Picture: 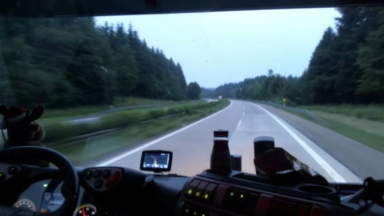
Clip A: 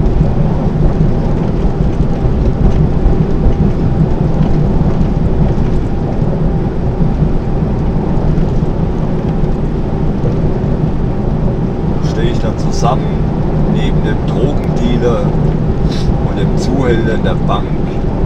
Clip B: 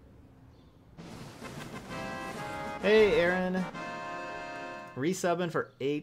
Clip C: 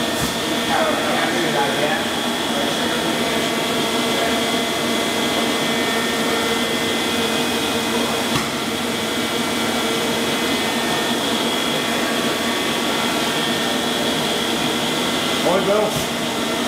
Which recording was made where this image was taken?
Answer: A